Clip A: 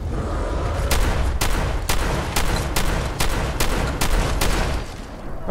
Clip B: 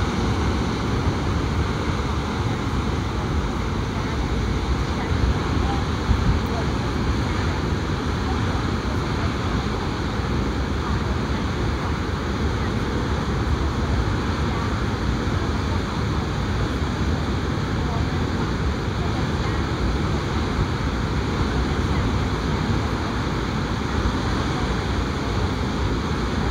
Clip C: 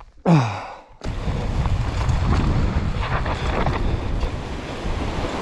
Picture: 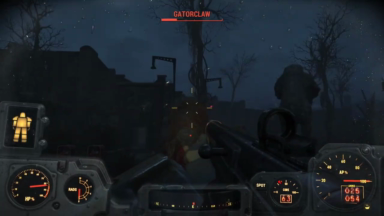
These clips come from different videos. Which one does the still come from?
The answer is A